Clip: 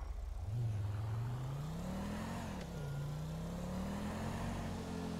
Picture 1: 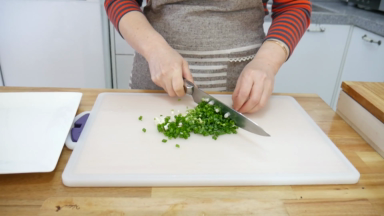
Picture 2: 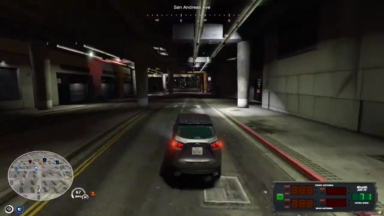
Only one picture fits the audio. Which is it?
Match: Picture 2